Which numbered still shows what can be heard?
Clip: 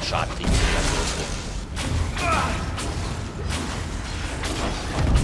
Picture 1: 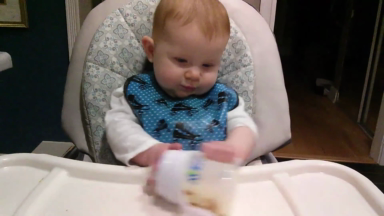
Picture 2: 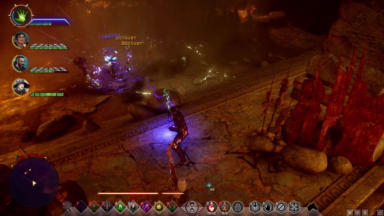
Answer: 2